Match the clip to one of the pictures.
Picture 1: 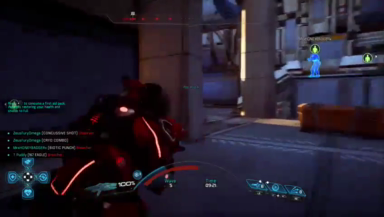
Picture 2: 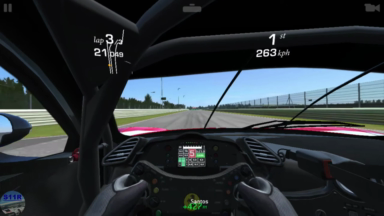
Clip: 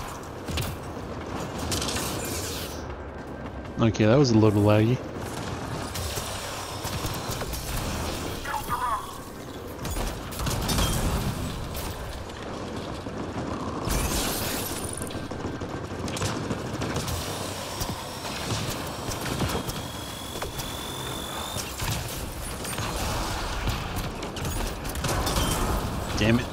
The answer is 1